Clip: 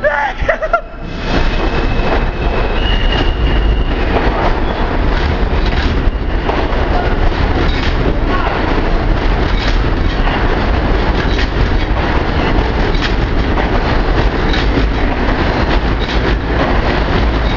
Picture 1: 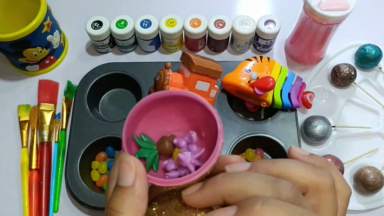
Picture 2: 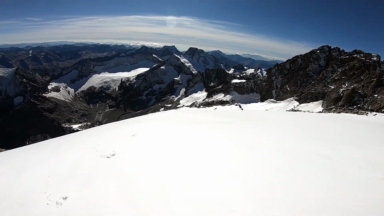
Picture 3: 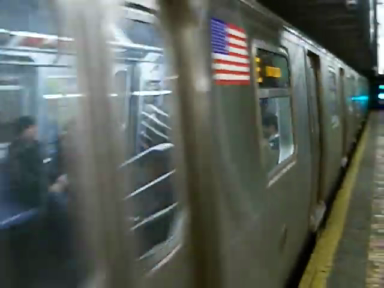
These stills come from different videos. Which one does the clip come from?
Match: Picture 3